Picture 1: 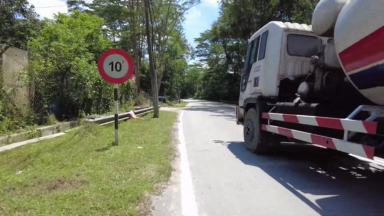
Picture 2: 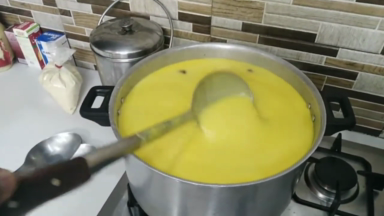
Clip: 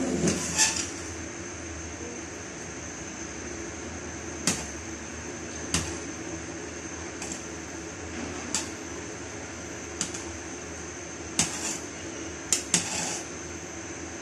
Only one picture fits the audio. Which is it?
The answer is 2